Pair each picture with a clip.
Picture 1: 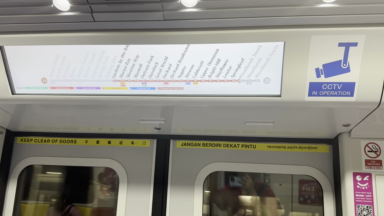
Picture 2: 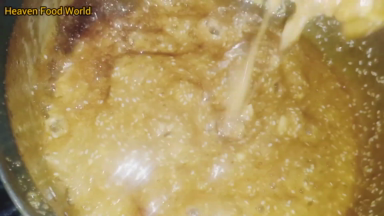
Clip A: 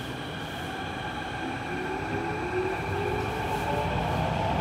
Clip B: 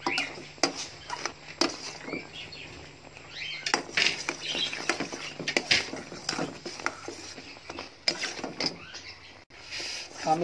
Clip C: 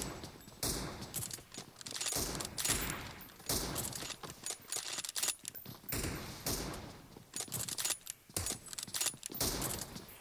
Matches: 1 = A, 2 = B